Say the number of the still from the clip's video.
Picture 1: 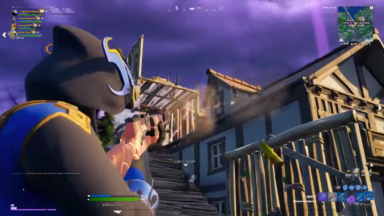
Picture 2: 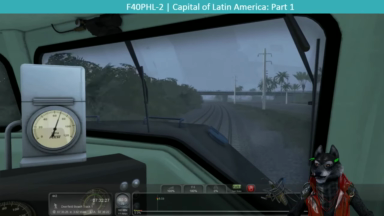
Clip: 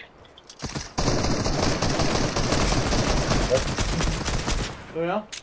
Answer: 1